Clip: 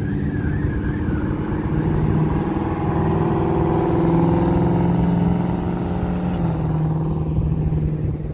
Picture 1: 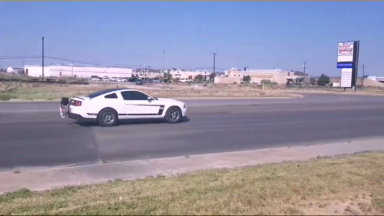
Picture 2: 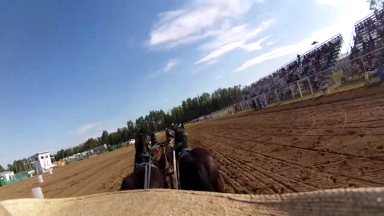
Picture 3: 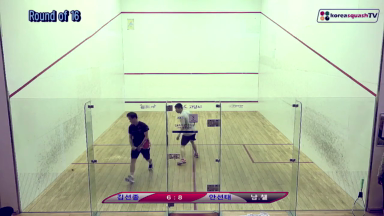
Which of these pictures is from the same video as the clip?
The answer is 1